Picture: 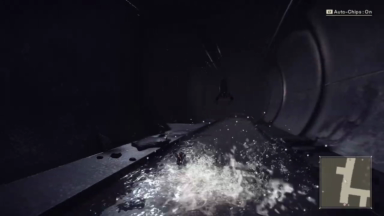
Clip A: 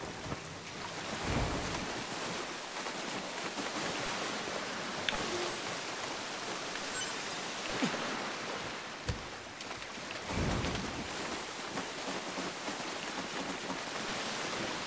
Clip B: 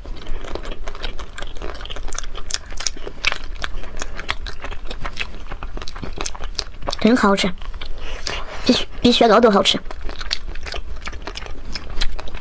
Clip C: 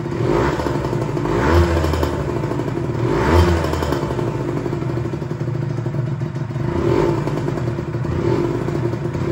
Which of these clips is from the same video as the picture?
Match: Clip A